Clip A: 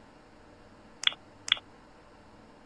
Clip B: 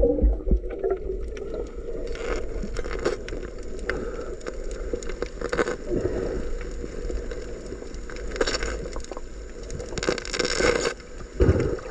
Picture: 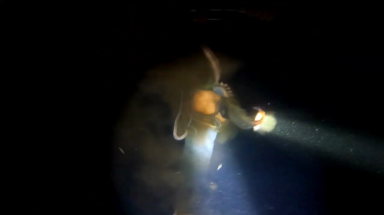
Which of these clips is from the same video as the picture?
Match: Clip B